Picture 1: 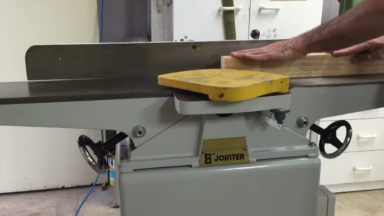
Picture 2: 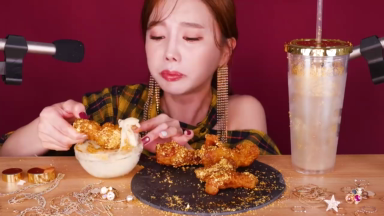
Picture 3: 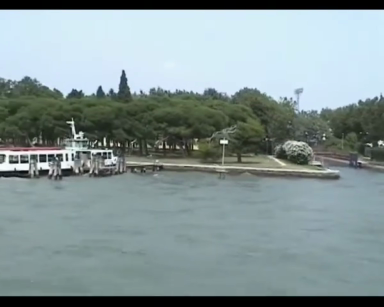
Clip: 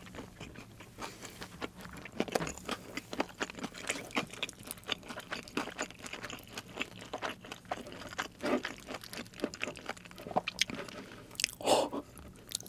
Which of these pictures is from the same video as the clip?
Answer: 2